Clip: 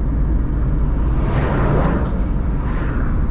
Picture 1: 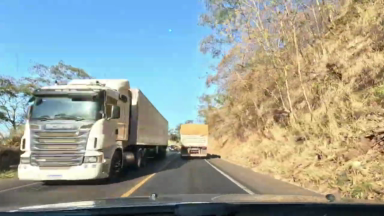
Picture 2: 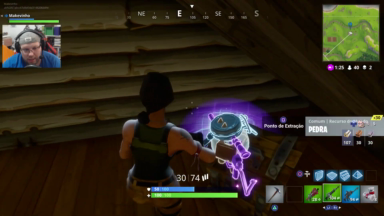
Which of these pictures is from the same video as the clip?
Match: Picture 1